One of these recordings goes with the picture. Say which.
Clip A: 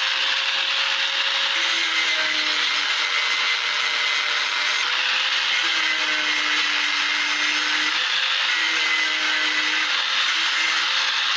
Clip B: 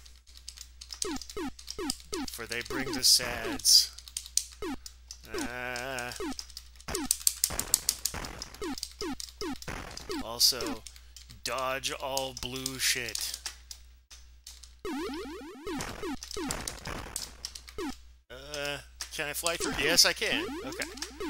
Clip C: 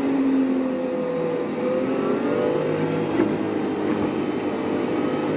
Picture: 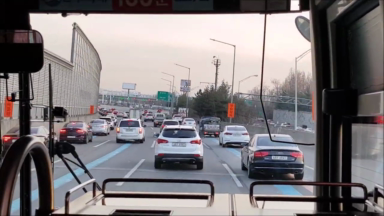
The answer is C